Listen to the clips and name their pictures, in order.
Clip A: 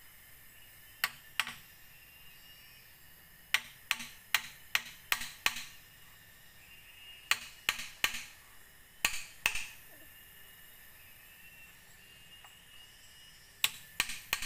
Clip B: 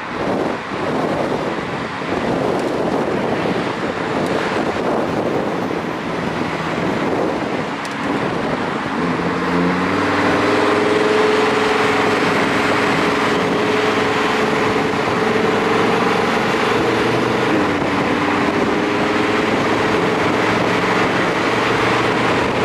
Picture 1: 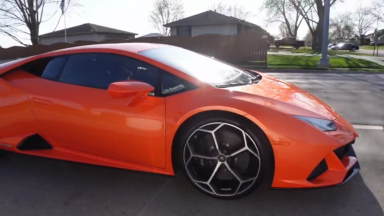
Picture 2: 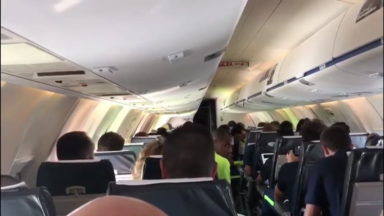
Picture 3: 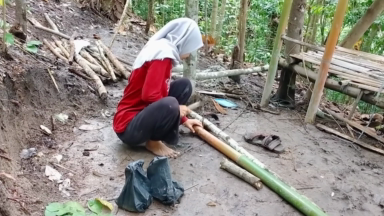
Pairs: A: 3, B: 1